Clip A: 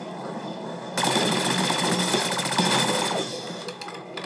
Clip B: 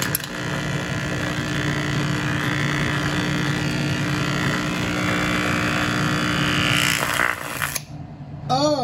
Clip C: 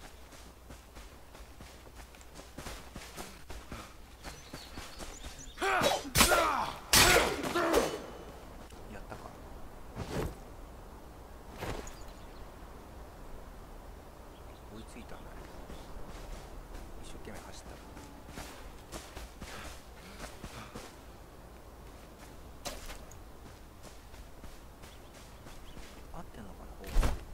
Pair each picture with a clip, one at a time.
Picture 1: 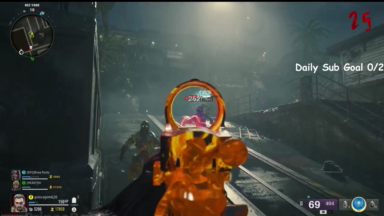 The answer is A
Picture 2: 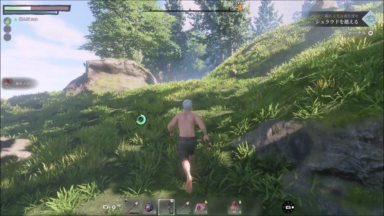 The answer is C